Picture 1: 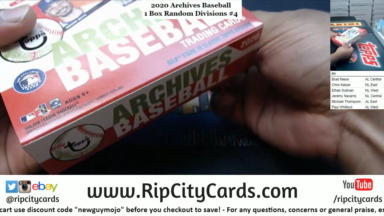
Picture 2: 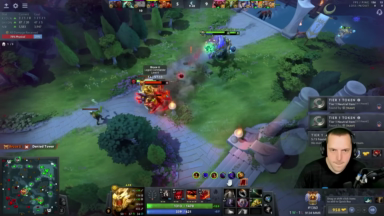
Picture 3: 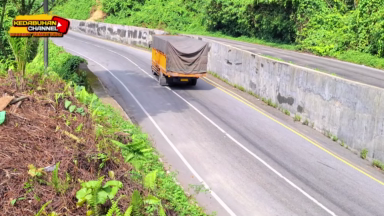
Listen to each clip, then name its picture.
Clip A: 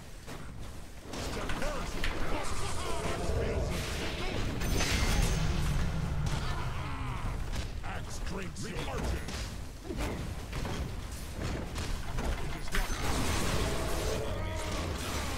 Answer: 2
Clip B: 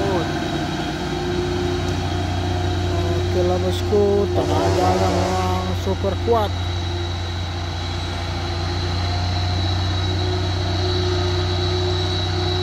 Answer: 3